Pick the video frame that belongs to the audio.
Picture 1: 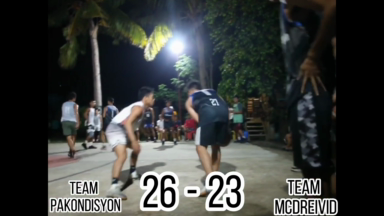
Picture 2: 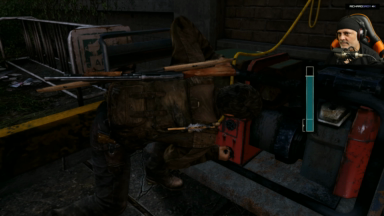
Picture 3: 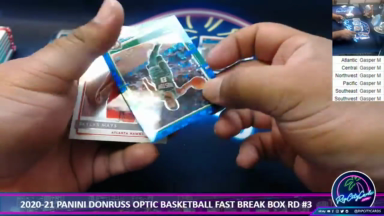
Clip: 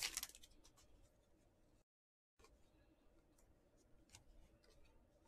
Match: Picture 3